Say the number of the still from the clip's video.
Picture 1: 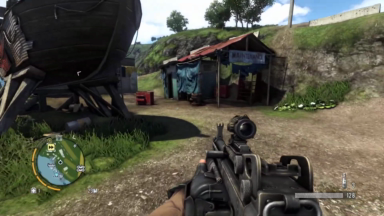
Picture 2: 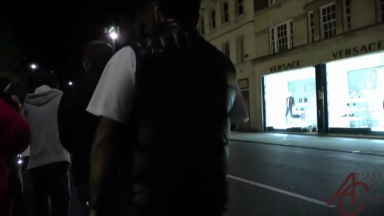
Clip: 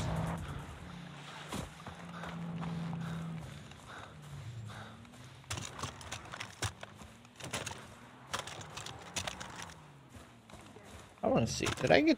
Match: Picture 1